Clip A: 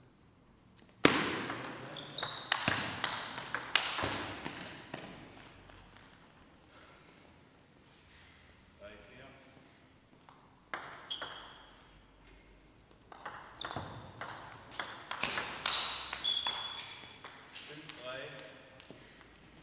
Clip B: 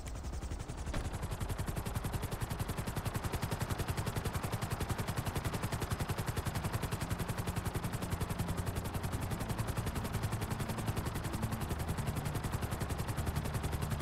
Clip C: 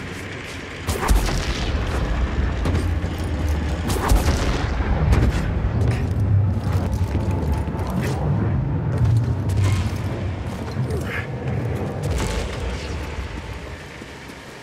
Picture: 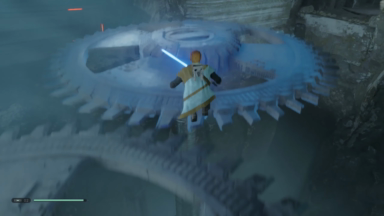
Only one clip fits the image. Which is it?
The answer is C